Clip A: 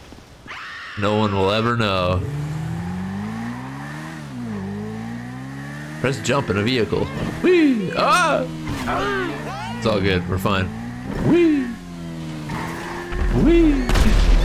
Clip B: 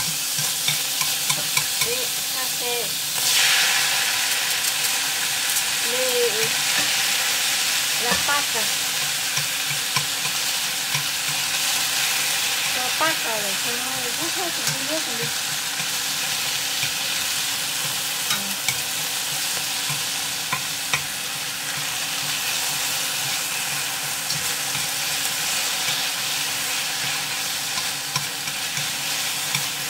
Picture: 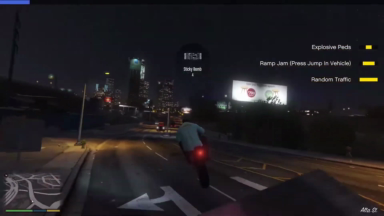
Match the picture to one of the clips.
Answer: A